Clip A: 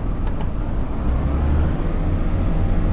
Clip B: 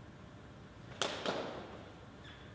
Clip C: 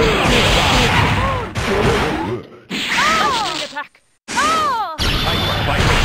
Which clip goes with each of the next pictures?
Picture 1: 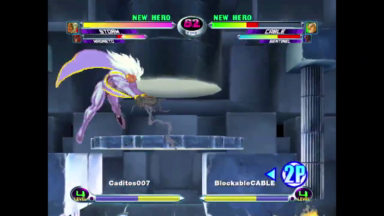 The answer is C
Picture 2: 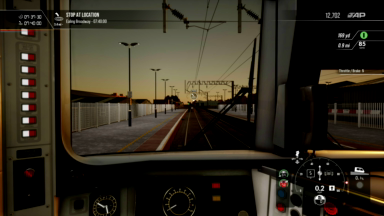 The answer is A